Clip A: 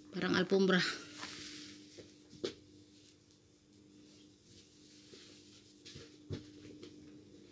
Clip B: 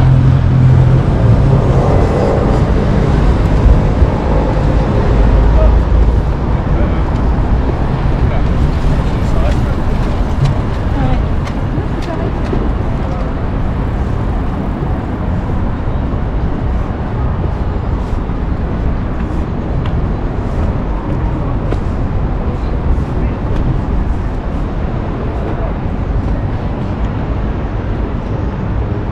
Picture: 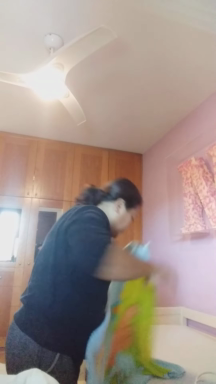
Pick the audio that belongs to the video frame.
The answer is A